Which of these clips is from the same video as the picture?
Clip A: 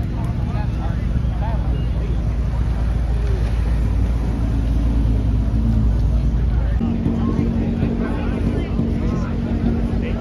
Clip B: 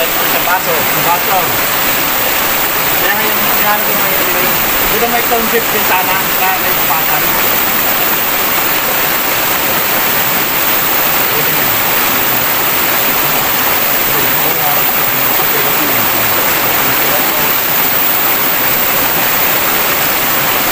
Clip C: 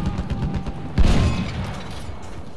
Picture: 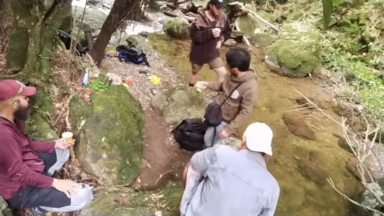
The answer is B